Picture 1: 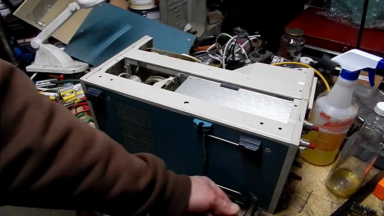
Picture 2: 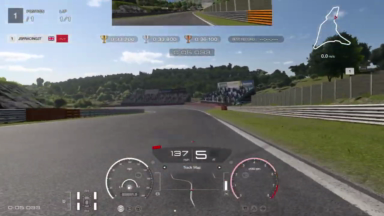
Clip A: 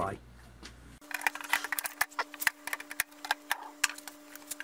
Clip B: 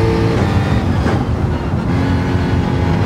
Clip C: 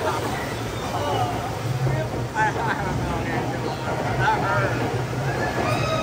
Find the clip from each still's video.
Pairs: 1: A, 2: B